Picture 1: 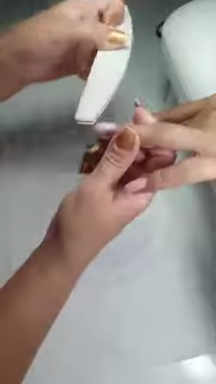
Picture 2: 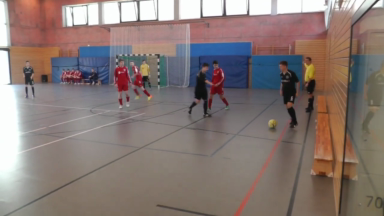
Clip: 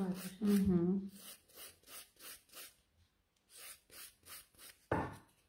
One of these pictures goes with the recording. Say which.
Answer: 1